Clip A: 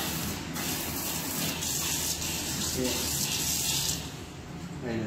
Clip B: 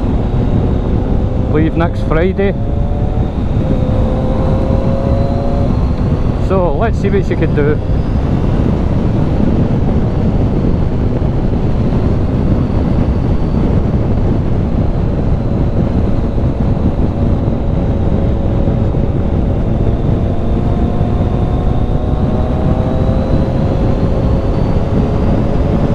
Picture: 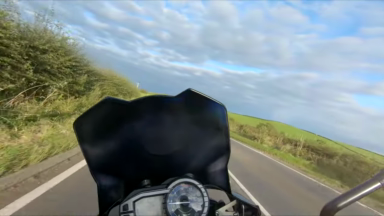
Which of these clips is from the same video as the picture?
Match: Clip B